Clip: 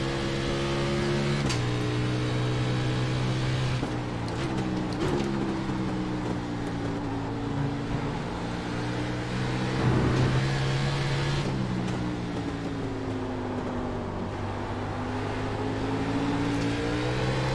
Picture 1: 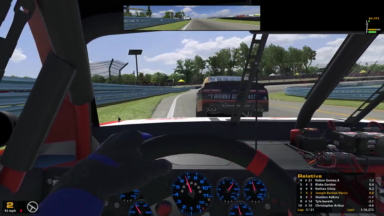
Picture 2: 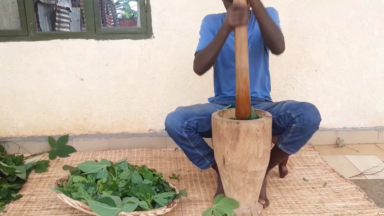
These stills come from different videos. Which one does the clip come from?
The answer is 1